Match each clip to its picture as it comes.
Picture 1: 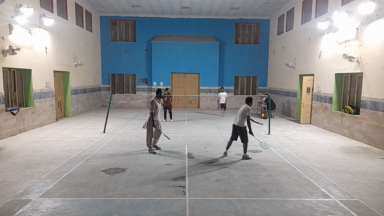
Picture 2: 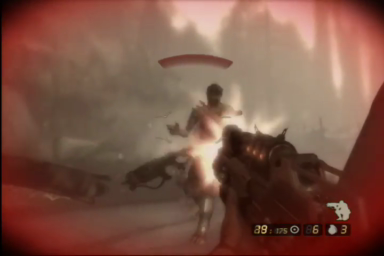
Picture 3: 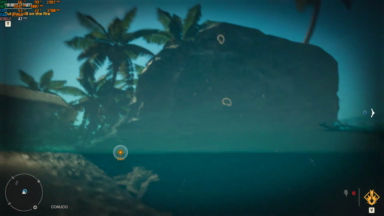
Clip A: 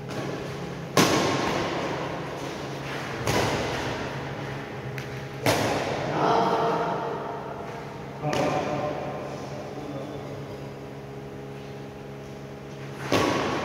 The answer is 1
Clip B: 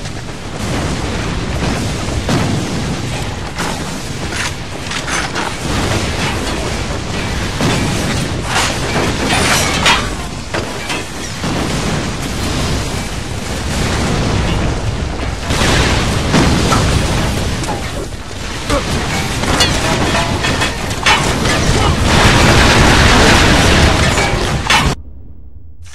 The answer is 2